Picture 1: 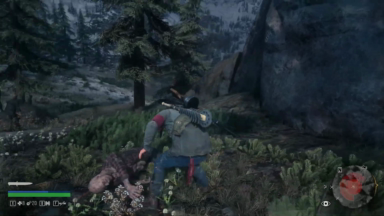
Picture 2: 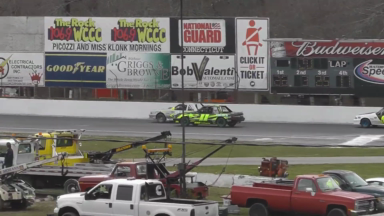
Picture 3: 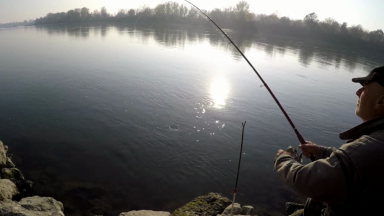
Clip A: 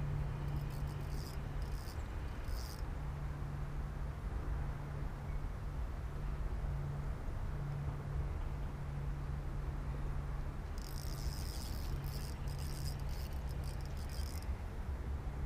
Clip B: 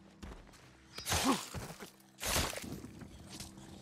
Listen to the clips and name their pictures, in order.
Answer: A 3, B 1